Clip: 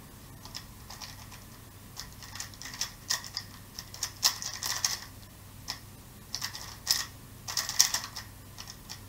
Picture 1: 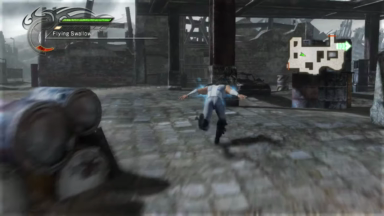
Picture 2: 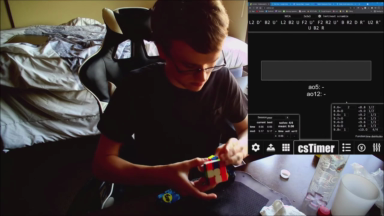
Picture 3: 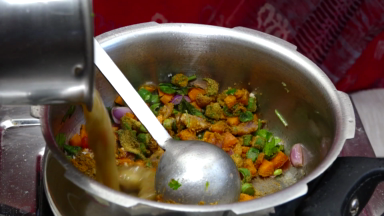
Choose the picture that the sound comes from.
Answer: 2